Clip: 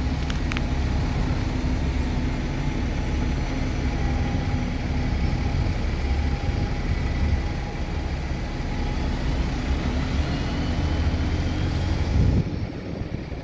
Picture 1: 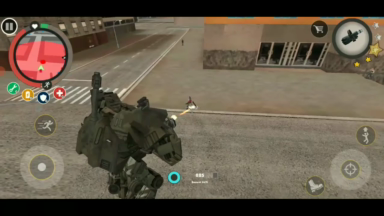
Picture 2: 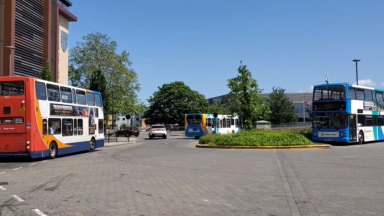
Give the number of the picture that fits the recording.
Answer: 2